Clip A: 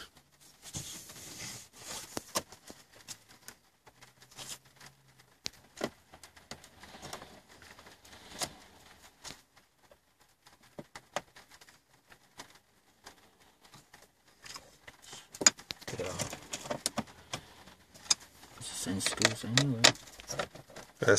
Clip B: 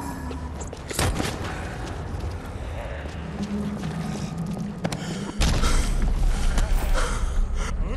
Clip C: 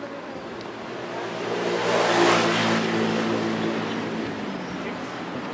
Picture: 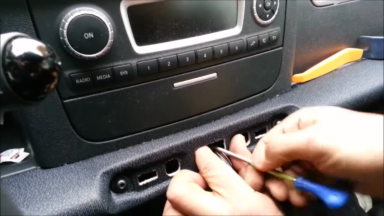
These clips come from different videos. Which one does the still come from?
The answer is A